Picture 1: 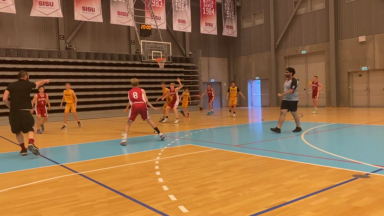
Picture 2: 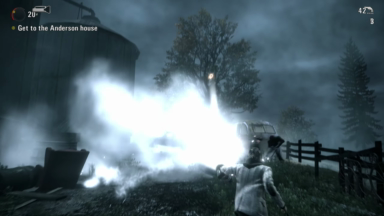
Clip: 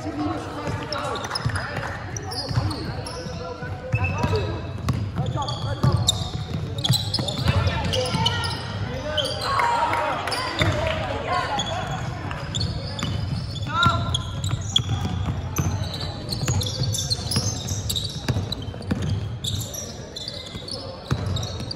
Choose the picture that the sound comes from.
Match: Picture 1